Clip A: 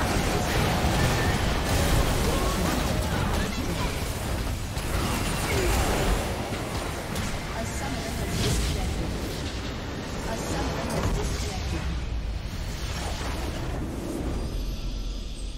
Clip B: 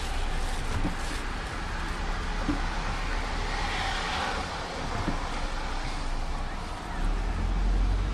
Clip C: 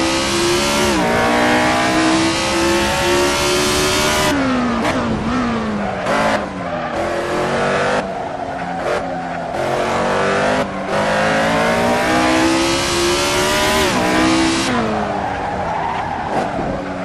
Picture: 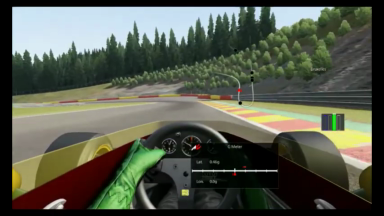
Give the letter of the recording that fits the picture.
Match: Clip C